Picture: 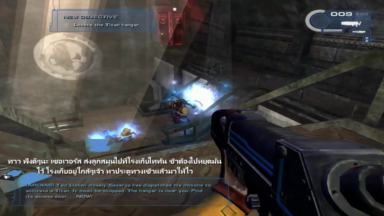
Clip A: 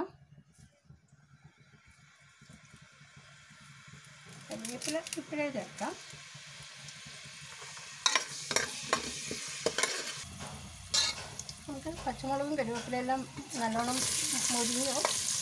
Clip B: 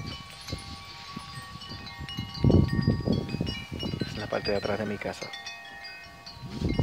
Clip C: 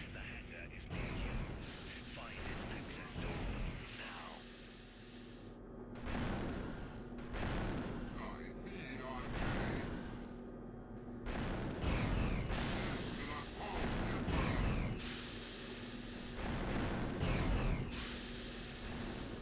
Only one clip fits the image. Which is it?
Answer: C